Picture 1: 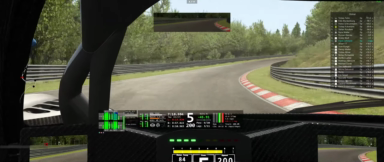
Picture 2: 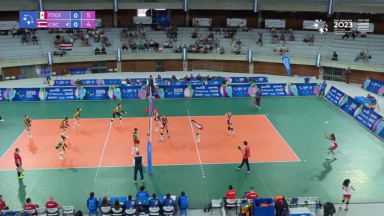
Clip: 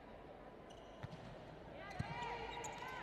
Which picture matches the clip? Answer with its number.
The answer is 2